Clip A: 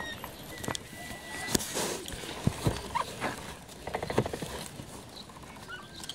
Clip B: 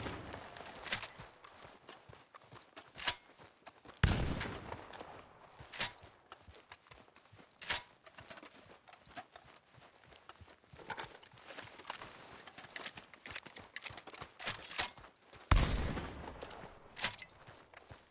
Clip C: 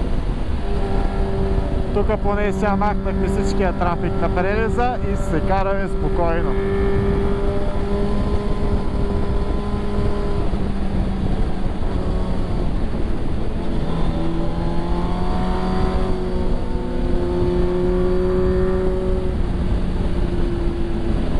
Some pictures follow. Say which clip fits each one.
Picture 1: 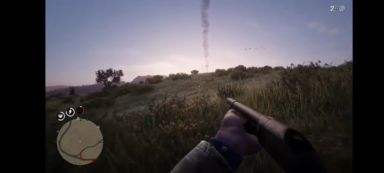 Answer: B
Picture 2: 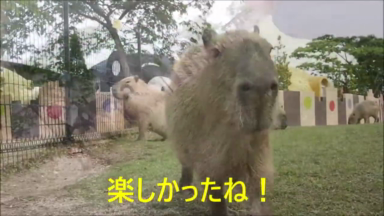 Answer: A